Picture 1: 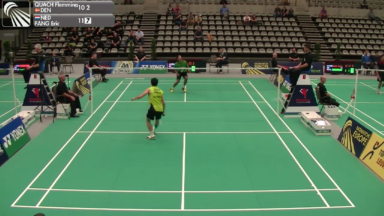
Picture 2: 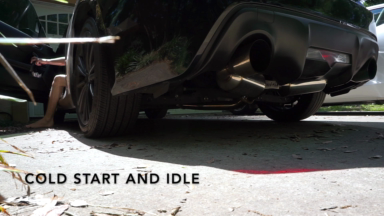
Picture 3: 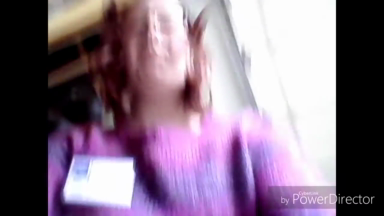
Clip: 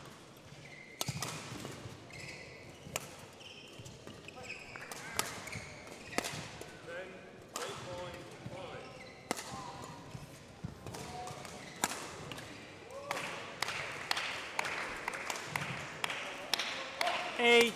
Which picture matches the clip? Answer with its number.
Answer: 1